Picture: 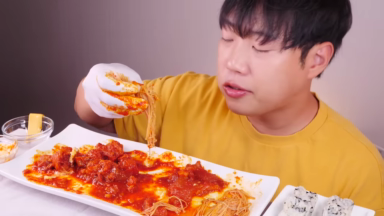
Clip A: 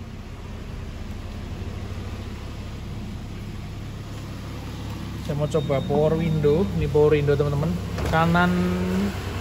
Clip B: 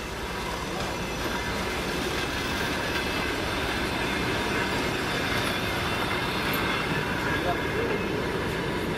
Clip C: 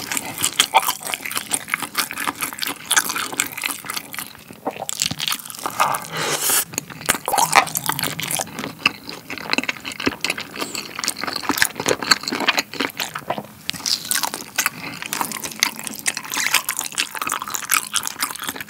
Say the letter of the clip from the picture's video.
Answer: C